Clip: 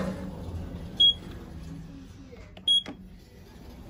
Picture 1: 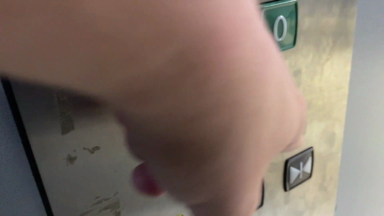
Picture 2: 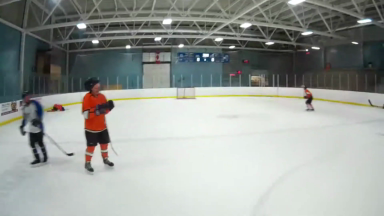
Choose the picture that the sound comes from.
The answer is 1